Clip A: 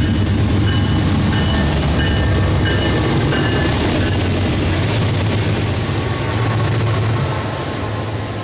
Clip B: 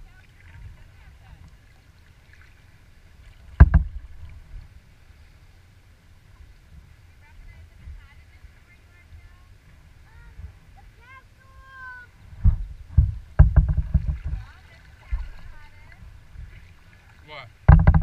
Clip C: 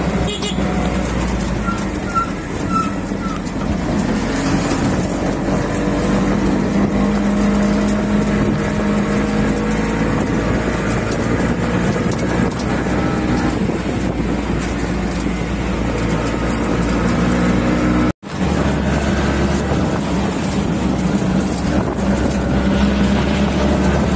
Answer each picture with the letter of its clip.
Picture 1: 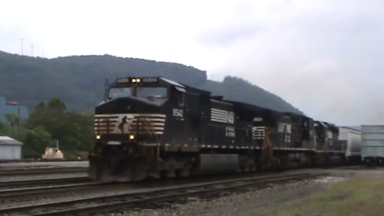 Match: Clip A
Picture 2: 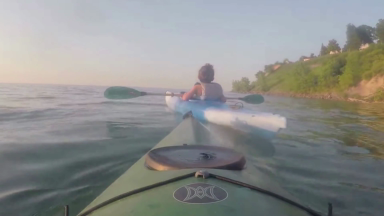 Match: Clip B